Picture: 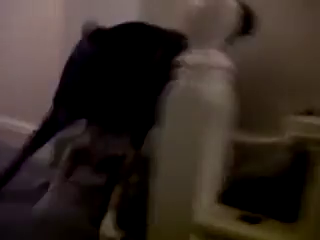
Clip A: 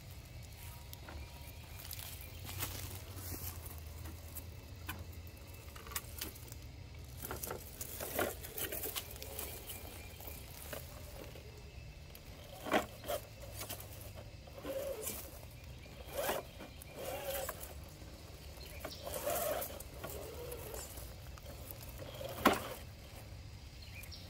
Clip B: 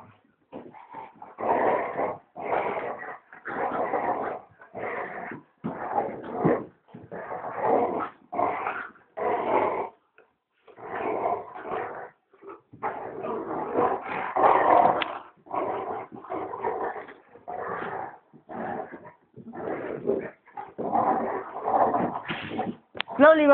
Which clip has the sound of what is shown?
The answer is B